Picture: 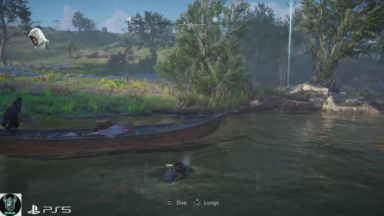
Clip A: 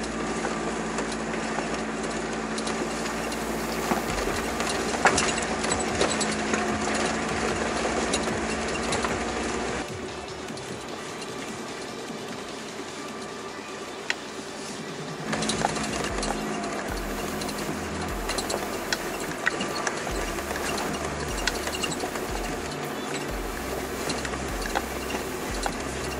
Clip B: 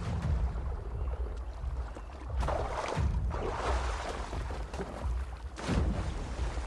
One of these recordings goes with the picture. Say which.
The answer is B